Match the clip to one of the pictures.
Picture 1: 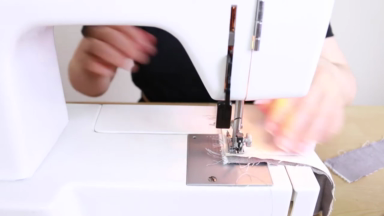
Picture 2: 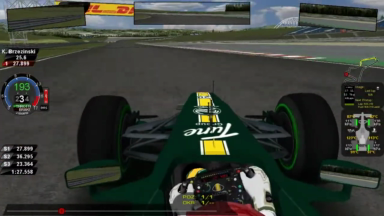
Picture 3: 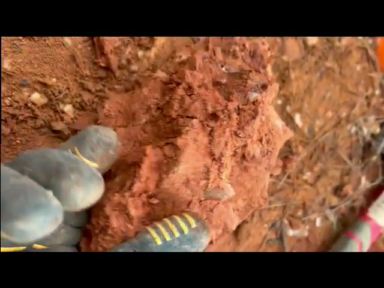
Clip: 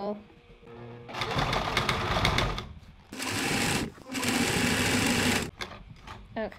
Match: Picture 1